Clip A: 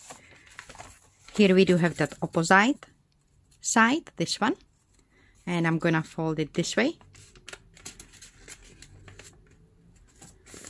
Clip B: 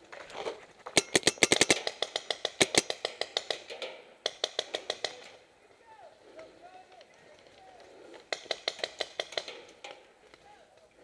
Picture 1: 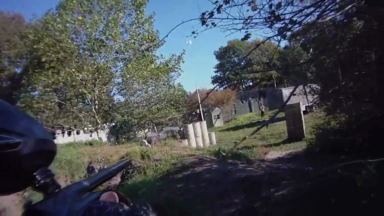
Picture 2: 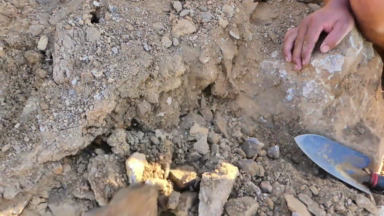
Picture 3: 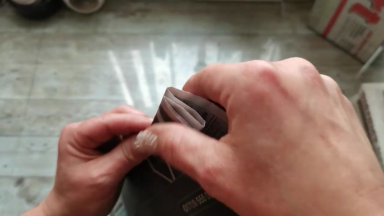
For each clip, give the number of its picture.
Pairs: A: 3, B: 1